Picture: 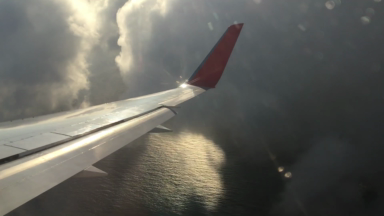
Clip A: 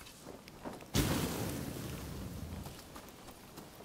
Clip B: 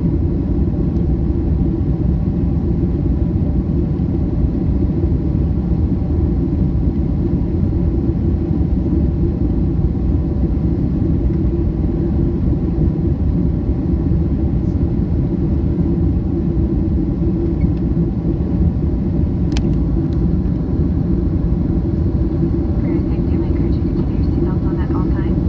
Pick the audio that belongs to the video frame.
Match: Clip B